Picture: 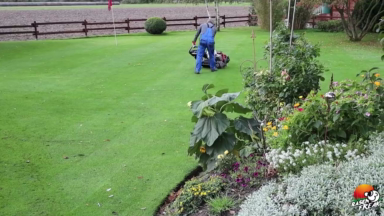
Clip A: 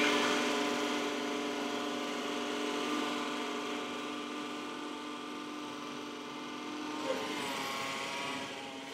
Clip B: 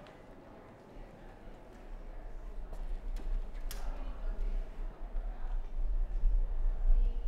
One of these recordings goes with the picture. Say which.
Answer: A